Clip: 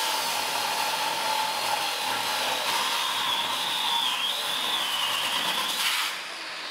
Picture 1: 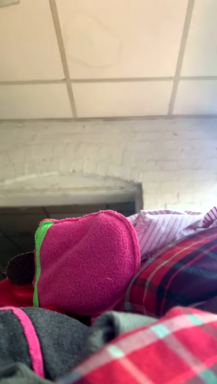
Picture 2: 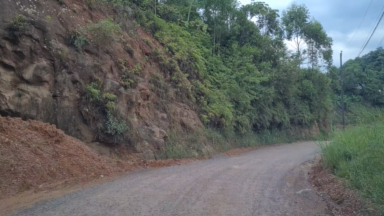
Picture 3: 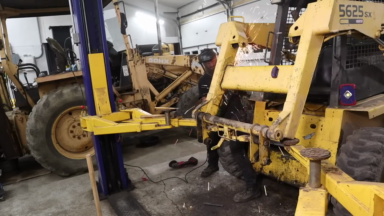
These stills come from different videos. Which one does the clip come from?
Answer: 3